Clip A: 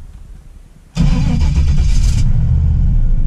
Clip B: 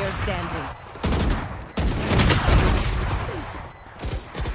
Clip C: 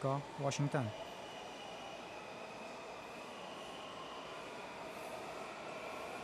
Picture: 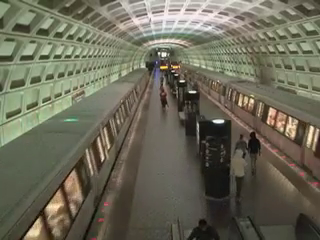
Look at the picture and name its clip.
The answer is C